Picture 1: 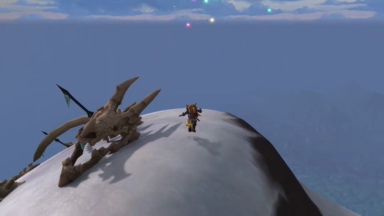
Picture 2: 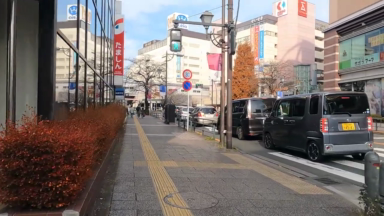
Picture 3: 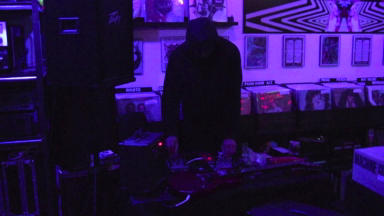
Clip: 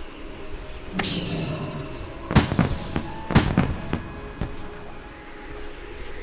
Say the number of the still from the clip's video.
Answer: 1